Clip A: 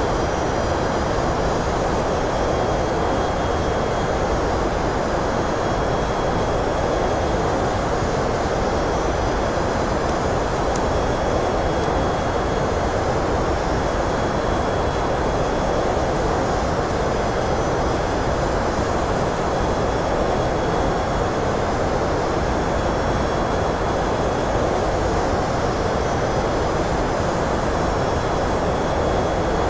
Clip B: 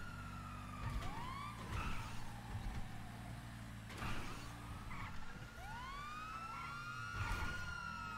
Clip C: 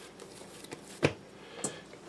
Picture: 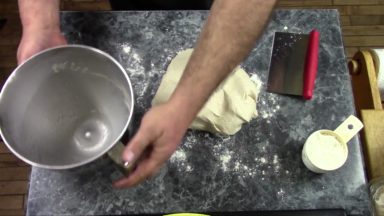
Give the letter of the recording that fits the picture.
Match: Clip C